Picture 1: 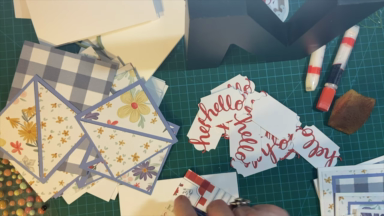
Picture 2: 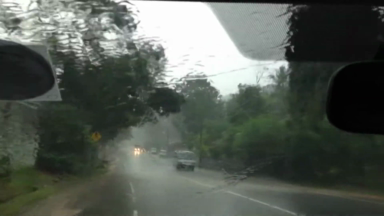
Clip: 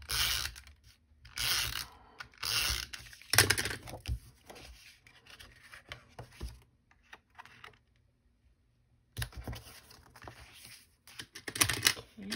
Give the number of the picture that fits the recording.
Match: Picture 1